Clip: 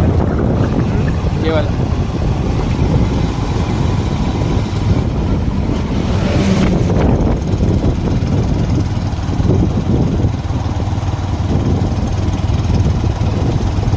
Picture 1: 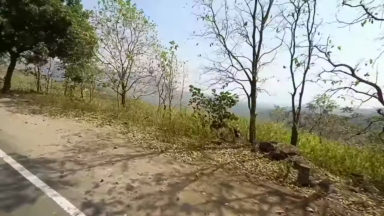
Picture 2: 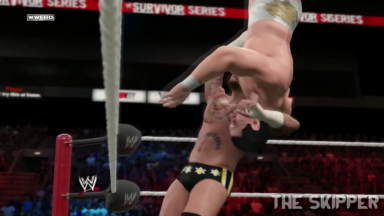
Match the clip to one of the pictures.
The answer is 1